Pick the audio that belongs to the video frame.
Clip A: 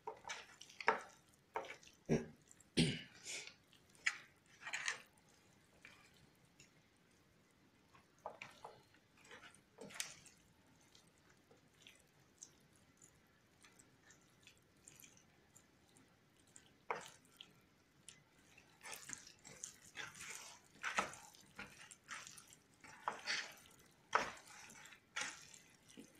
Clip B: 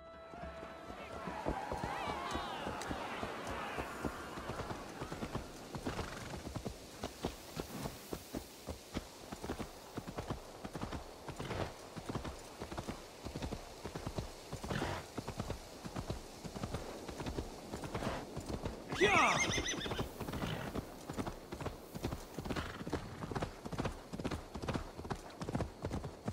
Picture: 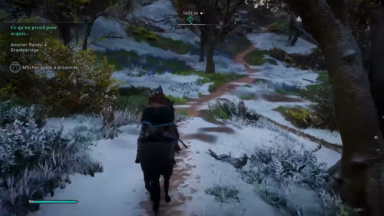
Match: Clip B